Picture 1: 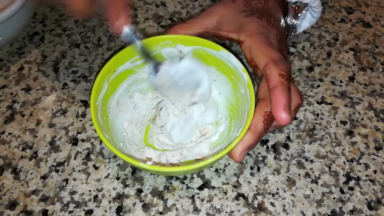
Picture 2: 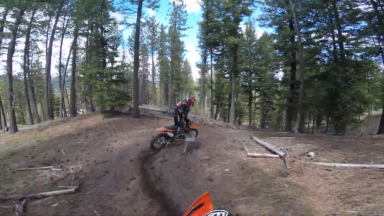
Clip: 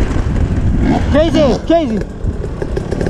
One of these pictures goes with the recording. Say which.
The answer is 2